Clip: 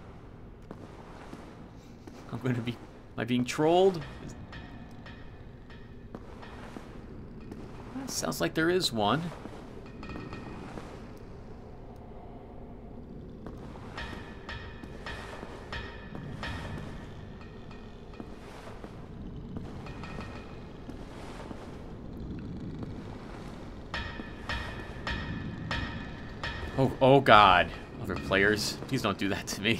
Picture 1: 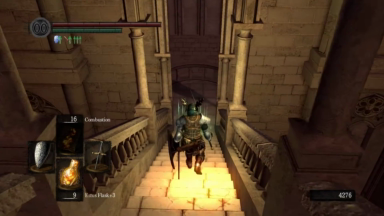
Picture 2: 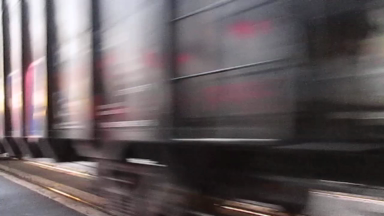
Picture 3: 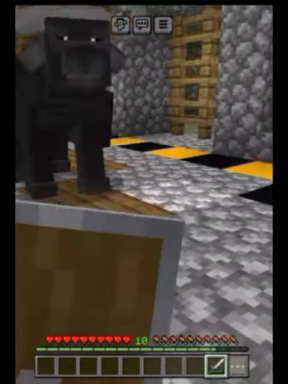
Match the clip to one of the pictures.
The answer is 1